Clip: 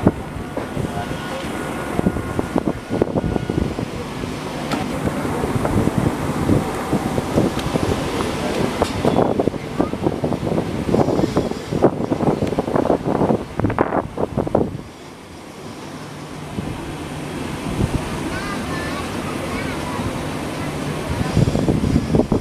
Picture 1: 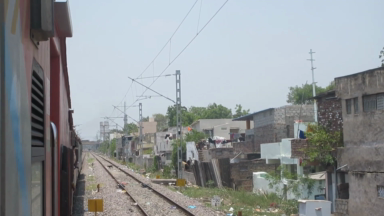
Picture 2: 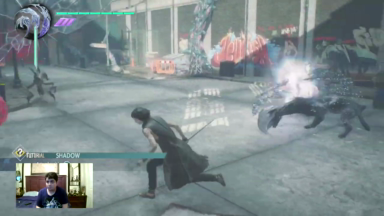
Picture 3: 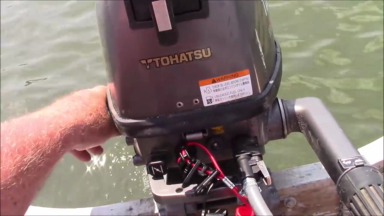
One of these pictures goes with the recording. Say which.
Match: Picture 1